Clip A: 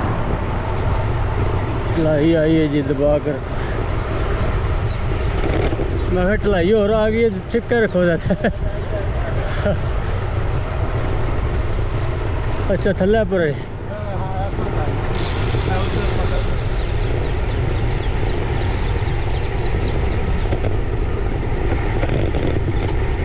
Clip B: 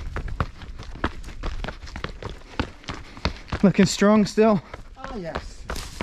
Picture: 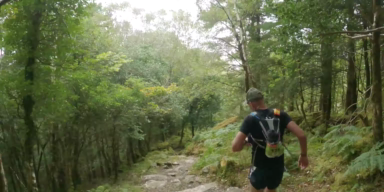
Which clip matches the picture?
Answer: B